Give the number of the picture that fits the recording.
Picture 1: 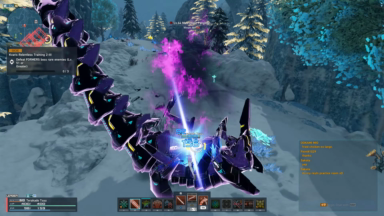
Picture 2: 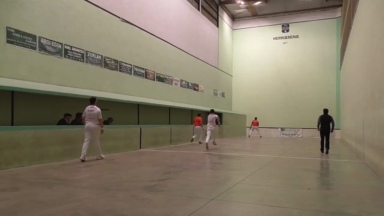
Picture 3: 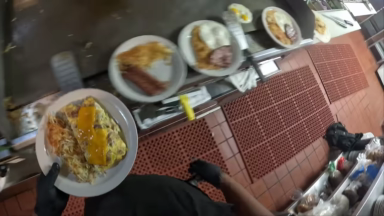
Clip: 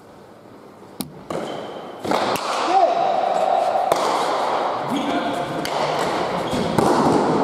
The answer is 2